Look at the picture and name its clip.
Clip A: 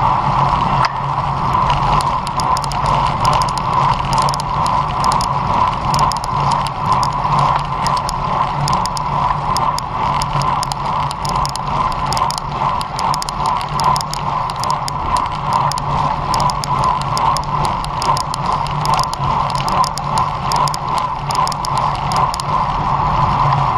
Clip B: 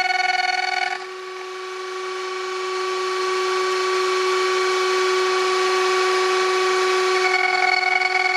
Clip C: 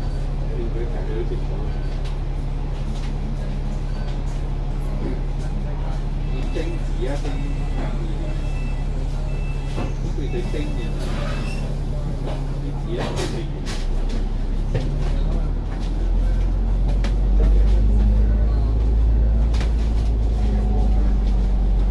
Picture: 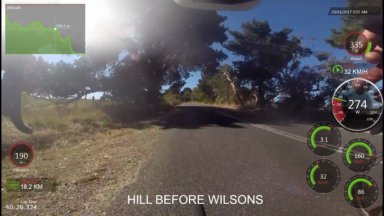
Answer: A